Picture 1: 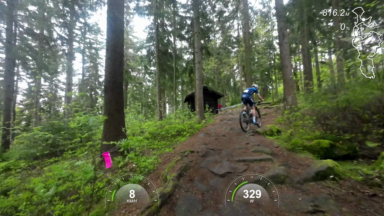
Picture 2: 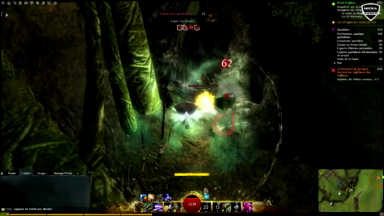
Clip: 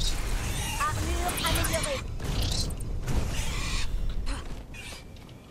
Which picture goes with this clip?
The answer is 2